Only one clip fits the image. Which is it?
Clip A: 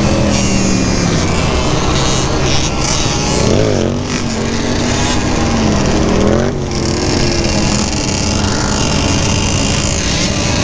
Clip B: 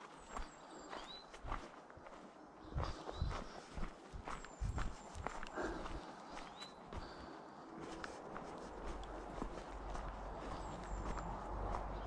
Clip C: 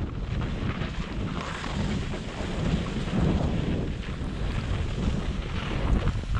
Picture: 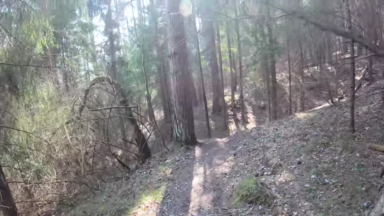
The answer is B